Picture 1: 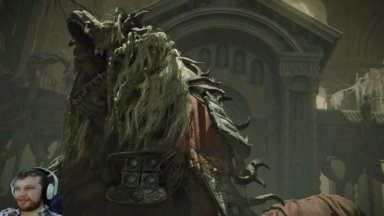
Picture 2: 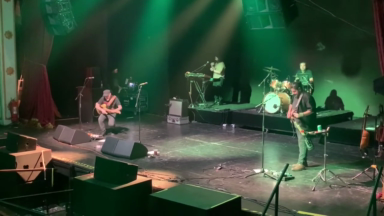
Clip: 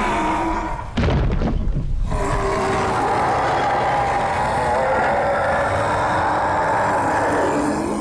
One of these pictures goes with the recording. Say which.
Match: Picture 1